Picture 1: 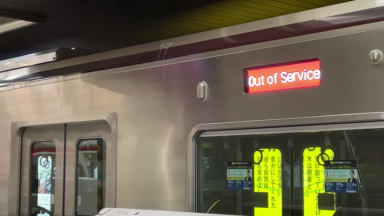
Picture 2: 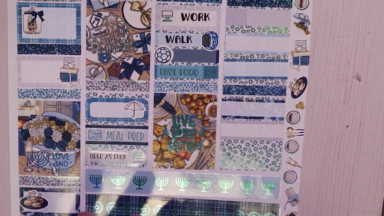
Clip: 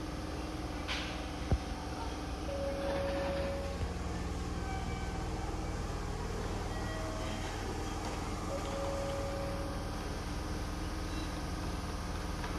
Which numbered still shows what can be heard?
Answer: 1